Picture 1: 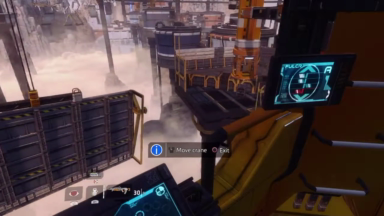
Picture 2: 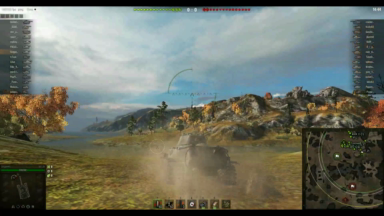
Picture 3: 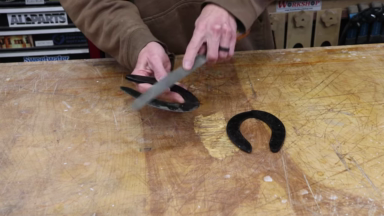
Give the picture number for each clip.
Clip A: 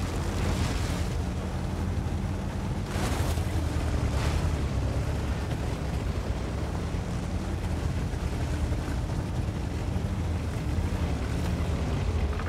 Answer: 2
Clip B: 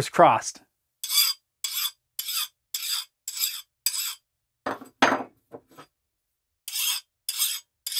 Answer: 3